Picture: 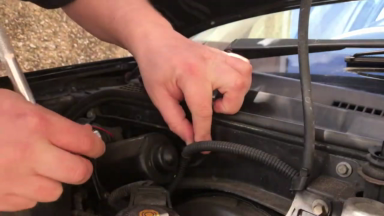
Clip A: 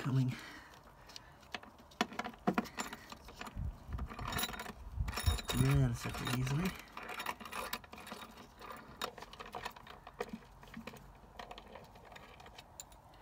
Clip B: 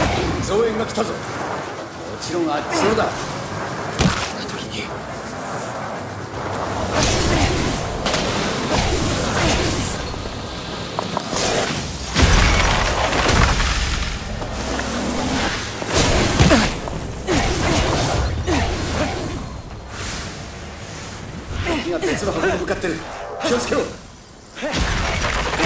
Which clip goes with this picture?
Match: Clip A